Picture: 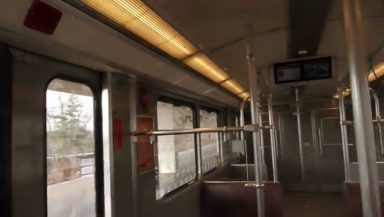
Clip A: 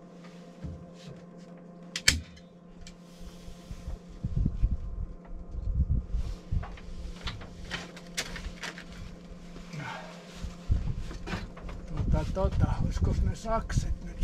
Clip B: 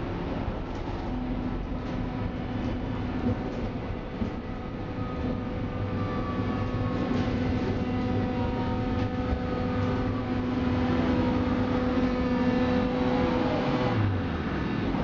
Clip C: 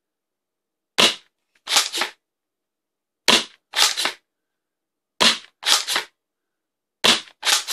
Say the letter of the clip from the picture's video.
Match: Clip B